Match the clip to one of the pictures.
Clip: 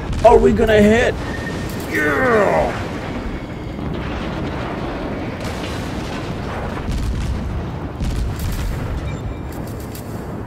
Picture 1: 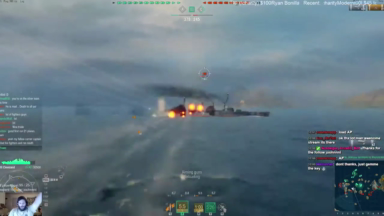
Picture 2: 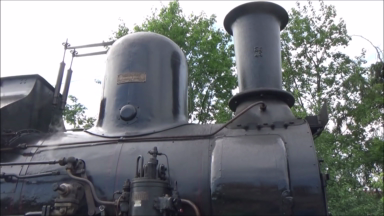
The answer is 1